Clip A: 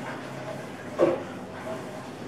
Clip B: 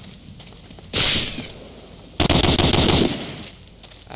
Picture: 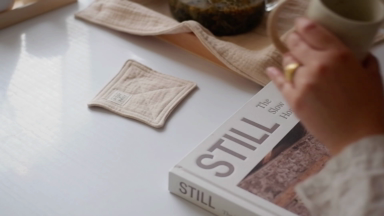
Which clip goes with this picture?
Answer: A